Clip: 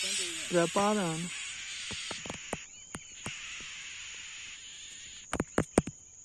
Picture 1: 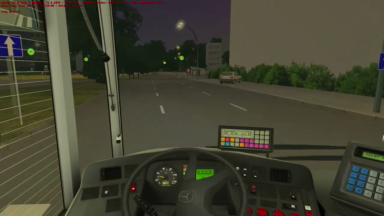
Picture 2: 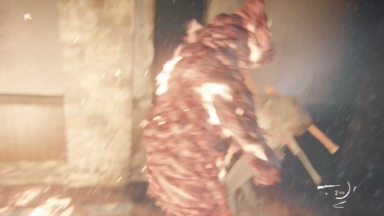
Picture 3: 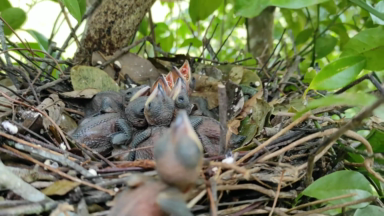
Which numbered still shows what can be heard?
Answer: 3